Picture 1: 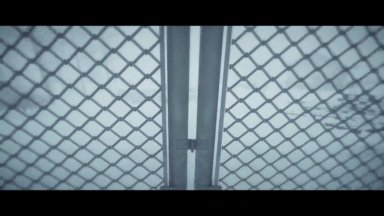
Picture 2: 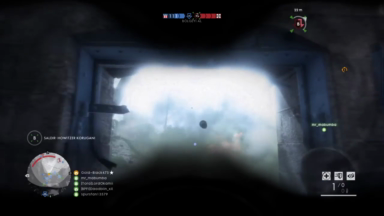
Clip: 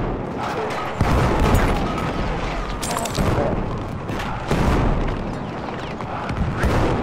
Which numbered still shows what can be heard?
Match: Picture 2